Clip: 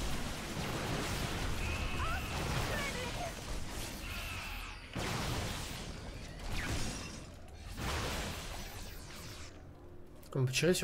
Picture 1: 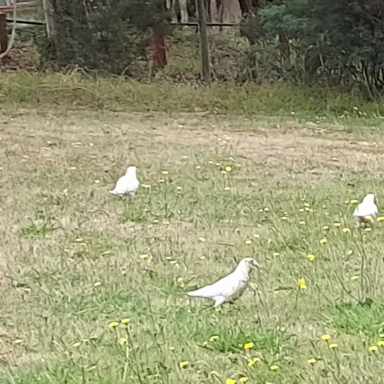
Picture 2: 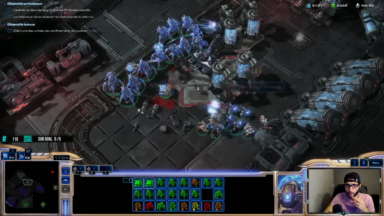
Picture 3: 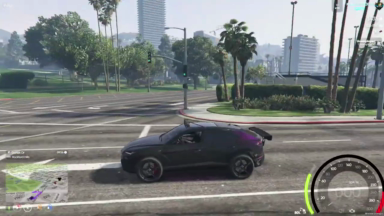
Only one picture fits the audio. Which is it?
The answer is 2